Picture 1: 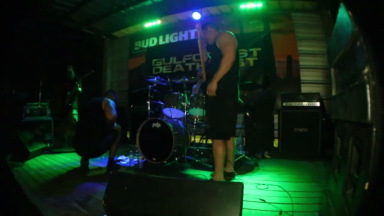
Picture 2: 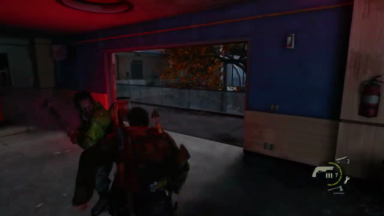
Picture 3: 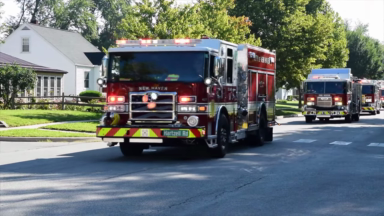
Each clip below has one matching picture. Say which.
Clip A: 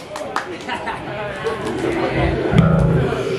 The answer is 1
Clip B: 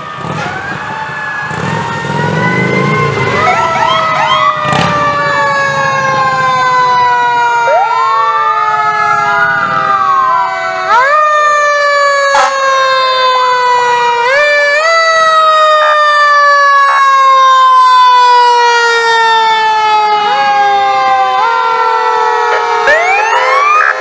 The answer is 3